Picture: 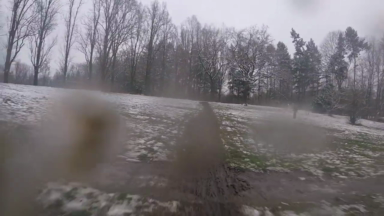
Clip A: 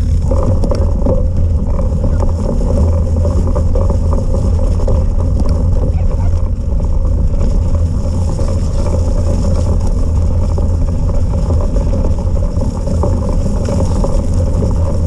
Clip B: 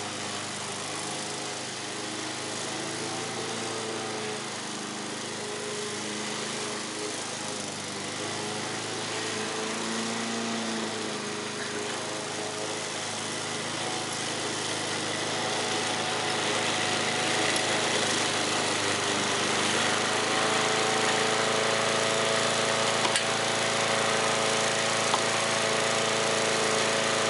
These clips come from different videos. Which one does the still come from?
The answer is A